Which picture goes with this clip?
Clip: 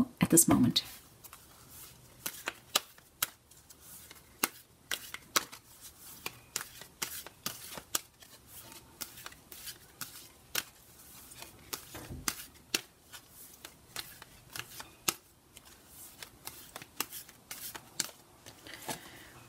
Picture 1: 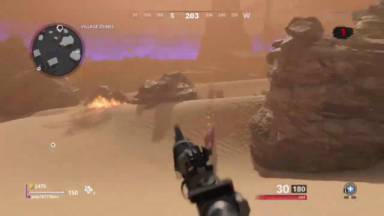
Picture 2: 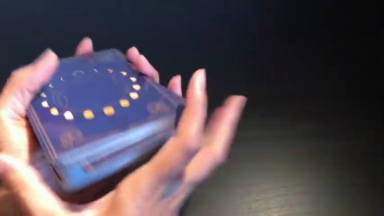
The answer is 2